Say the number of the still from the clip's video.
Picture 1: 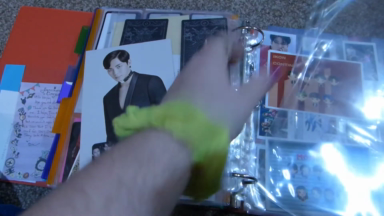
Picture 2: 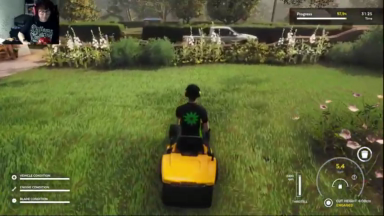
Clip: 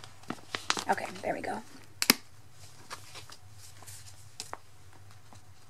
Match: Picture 1